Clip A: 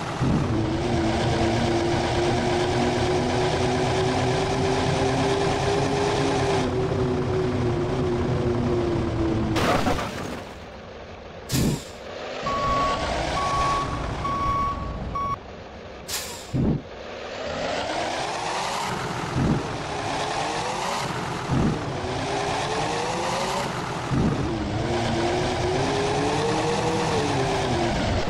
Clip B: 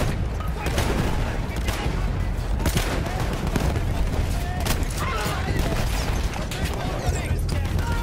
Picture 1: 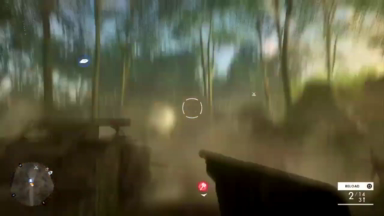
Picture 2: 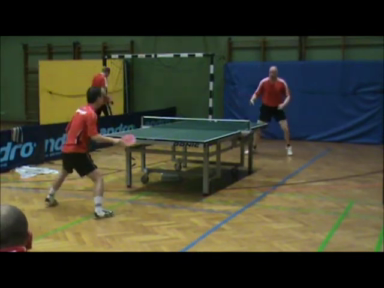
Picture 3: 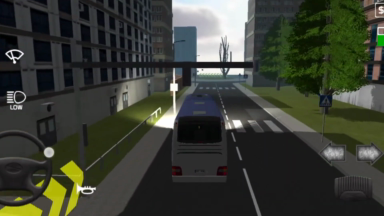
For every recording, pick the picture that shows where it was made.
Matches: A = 3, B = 1